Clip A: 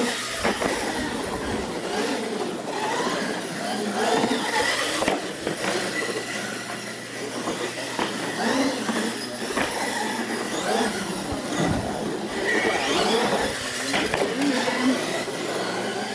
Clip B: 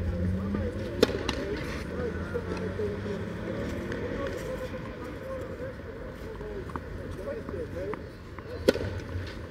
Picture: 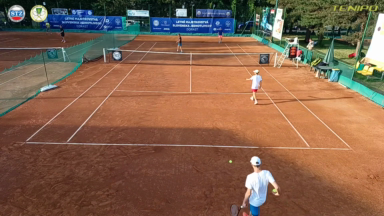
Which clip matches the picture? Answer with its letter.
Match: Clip B